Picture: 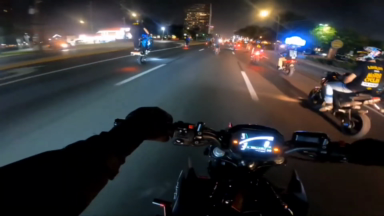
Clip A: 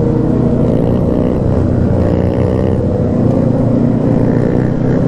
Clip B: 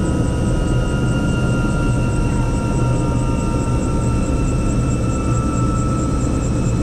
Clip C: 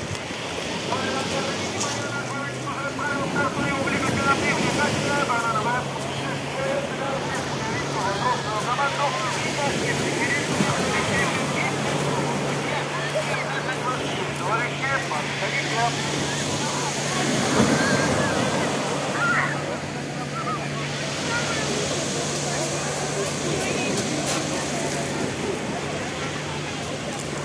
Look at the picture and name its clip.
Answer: A